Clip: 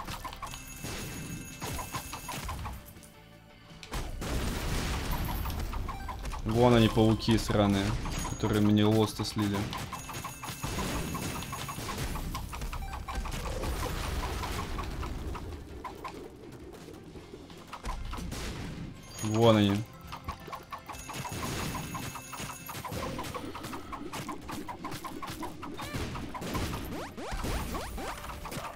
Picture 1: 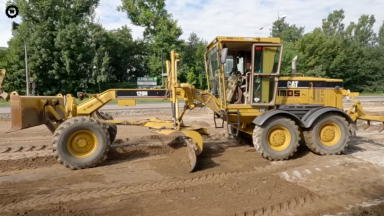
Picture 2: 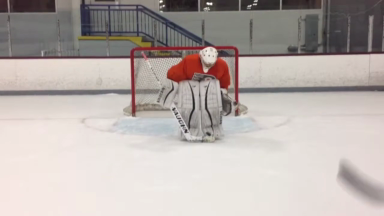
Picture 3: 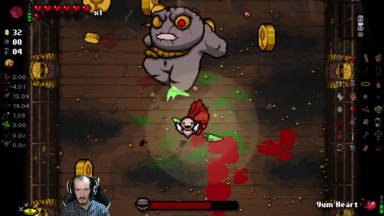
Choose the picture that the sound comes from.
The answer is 3